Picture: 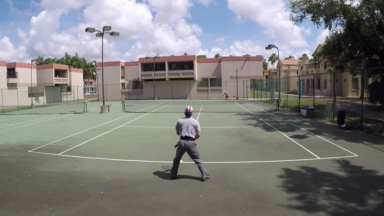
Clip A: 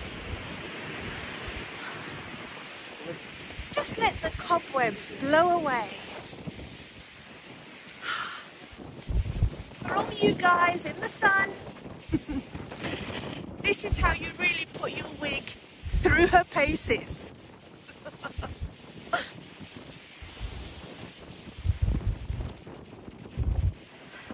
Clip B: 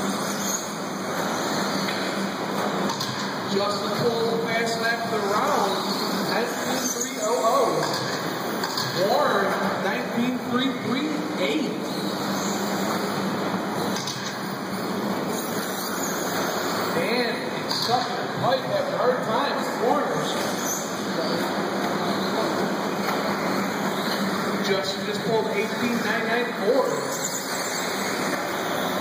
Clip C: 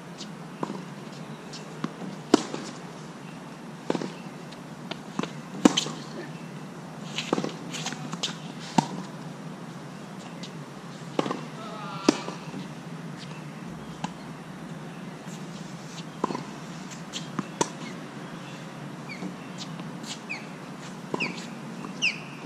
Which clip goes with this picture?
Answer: C